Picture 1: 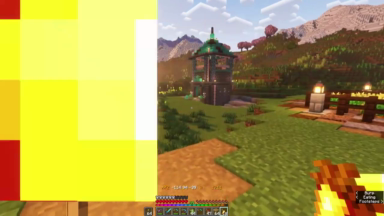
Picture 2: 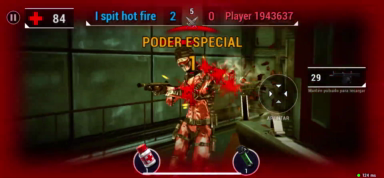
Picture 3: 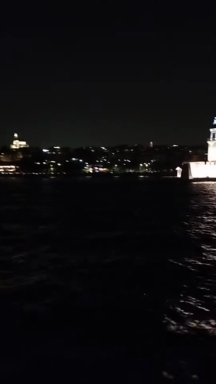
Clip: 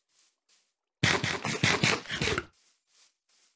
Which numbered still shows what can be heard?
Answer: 1